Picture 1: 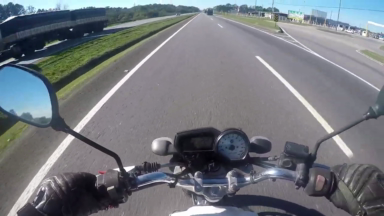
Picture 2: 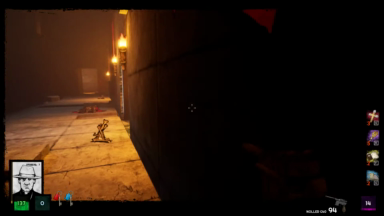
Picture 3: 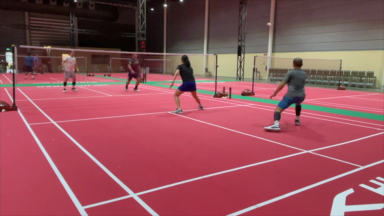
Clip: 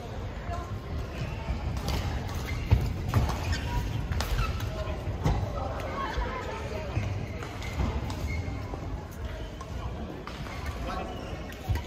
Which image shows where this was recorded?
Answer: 3